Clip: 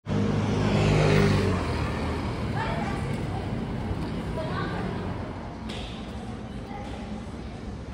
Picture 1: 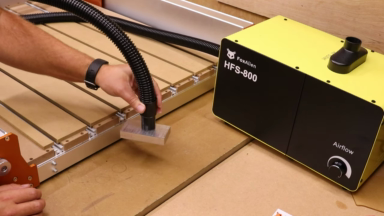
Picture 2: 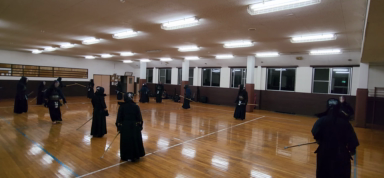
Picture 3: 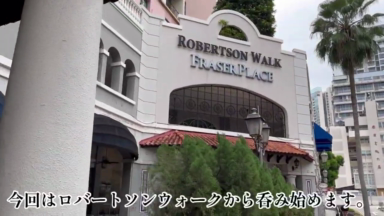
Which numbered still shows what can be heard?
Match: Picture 3